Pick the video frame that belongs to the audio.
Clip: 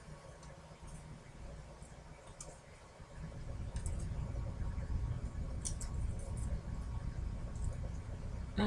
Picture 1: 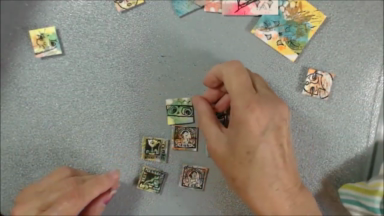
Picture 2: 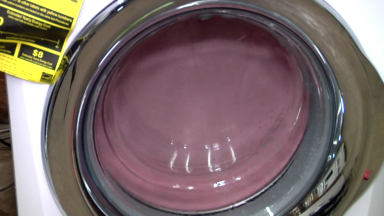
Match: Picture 1